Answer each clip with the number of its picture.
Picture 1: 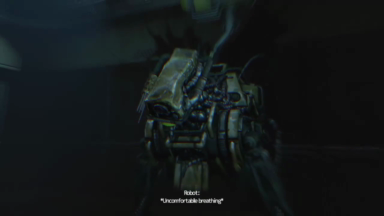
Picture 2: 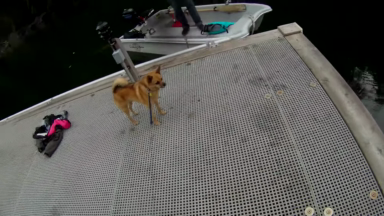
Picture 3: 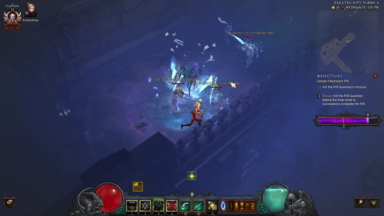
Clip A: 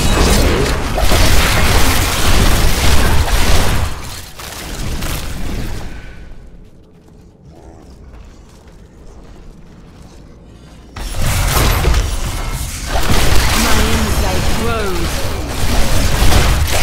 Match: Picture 3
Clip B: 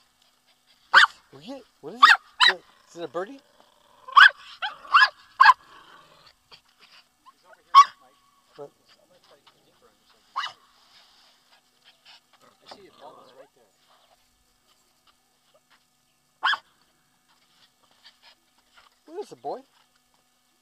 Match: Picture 2